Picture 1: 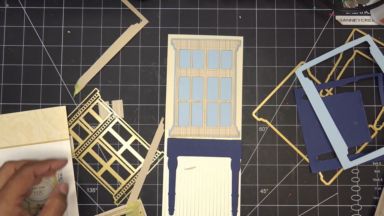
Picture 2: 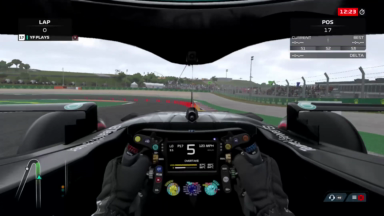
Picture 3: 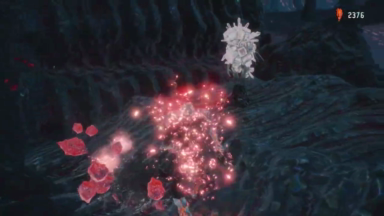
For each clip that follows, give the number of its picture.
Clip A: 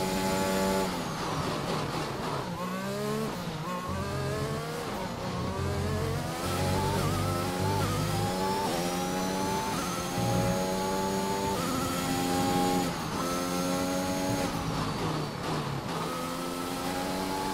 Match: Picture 2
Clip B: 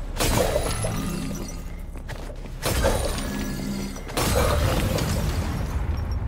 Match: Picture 3